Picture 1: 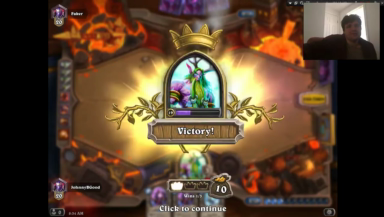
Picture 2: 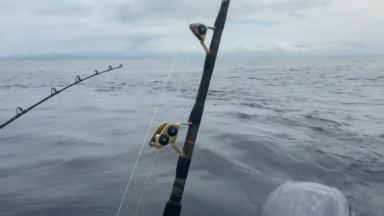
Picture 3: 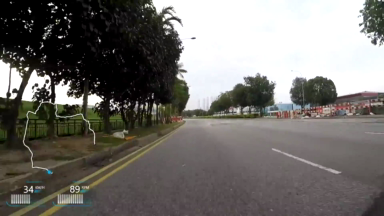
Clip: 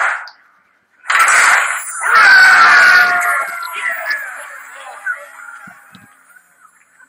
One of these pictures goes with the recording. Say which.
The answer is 1